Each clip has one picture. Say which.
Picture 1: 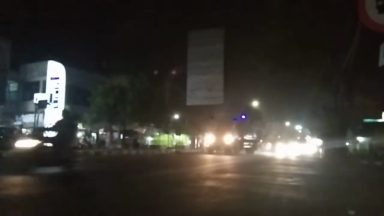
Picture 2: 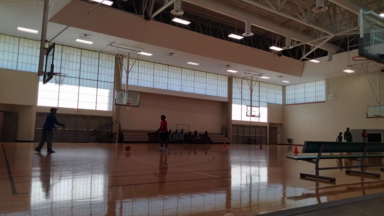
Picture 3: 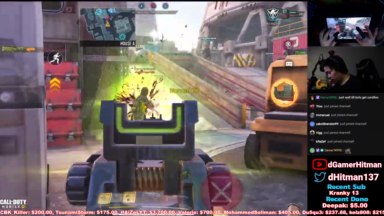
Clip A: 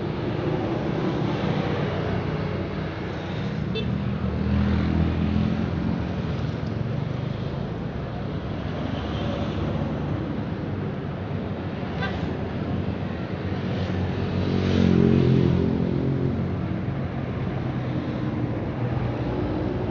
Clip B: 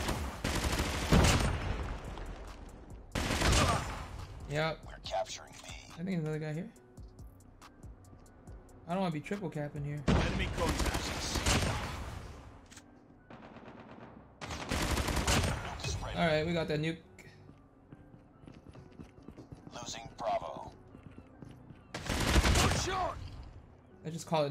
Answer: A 1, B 3